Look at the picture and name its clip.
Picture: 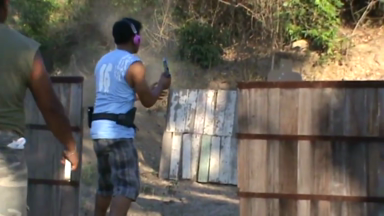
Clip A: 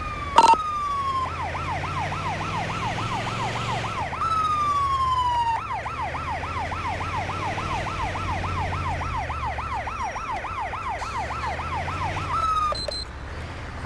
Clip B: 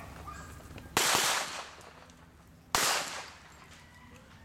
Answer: B